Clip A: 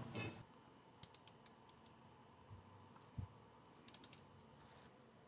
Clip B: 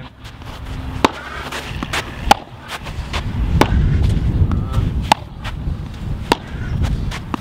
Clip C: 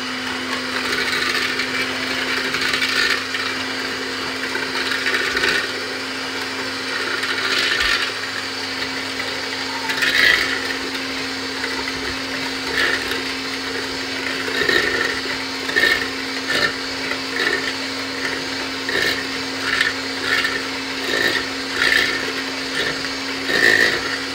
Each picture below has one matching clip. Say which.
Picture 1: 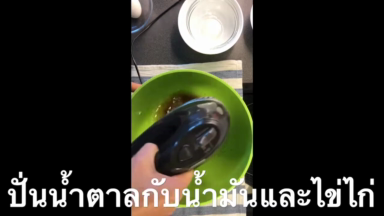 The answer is C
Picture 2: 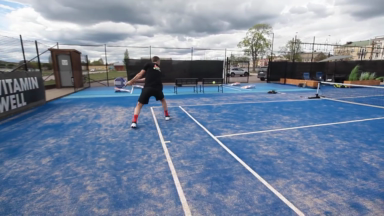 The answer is B